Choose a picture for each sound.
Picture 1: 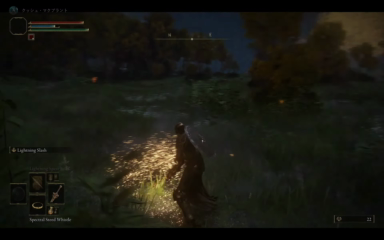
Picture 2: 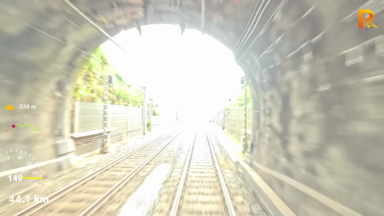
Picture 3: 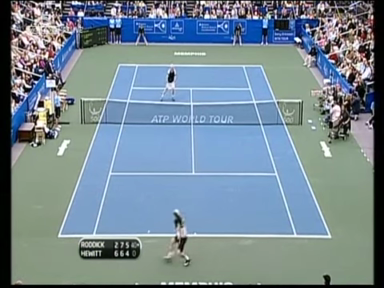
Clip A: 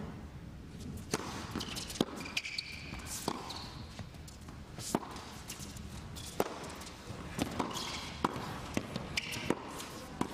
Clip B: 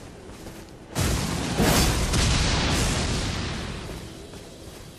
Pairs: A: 3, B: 1